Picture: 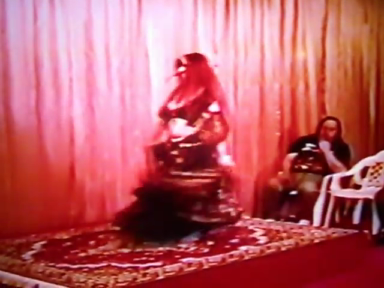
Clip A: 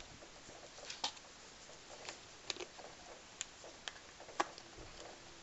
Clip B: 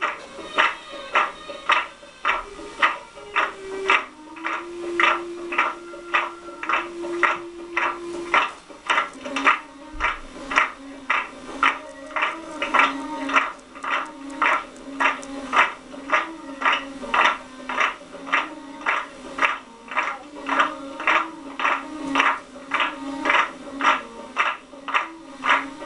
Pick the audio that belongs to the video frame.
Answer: B